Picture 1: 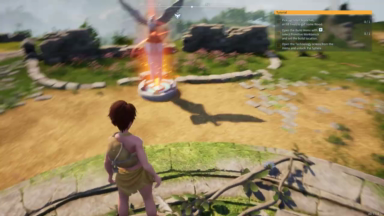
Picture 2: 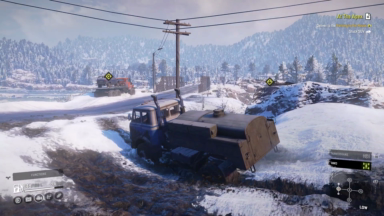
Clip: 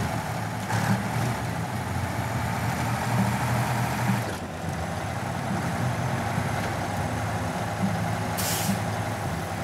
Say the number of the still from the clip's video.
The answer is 2